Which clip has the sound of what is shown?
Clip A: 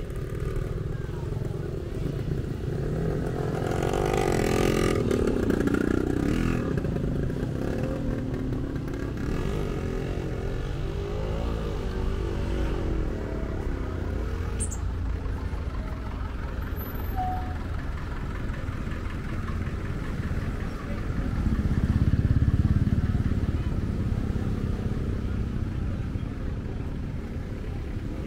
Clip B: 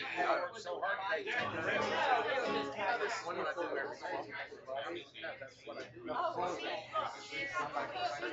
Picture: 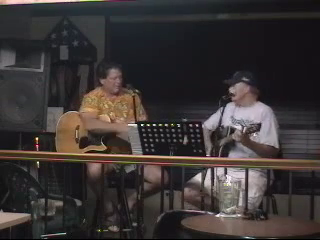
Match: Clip B